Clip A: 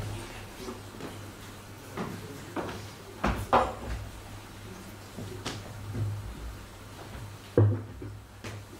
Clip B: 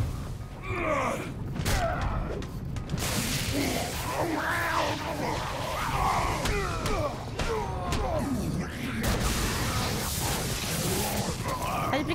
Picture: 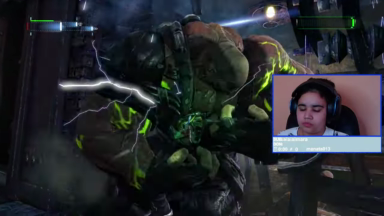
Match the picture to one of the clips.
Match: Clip B